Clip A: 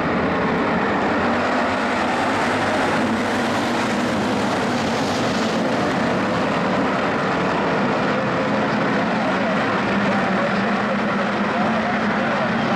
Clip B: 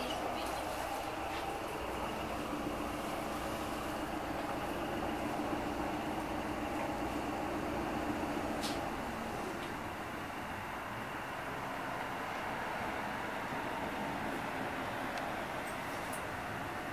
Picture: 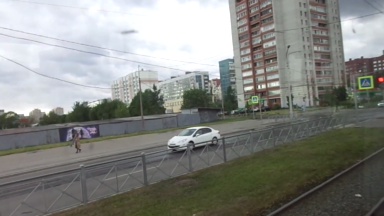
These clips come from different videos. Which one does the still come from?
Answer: B